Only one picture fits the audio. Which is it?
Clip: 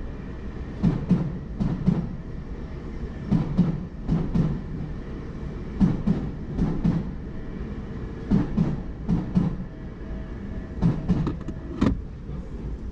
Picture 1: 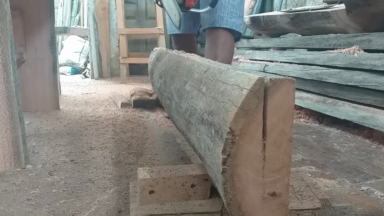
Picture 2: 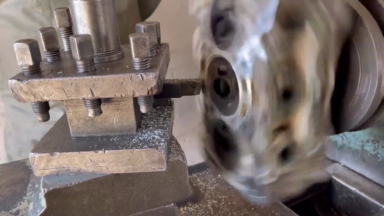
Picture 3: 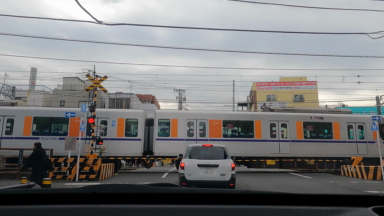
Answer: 3